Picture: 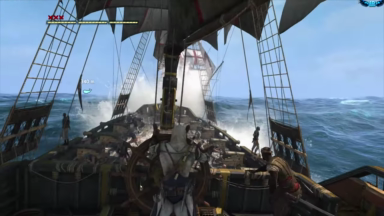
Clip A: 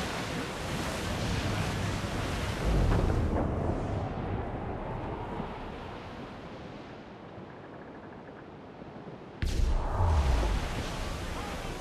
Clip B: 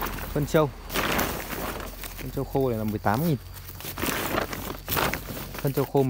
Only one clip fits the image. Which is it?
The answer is A